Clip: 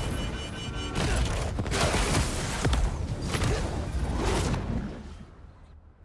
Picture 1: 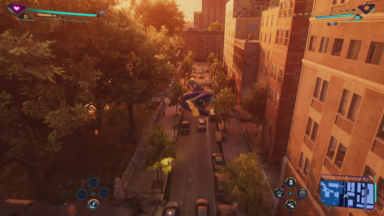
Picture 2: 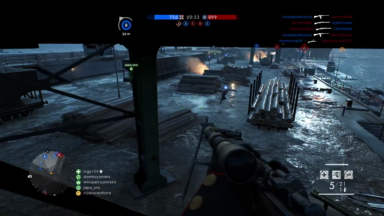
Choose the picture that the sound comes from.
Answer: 1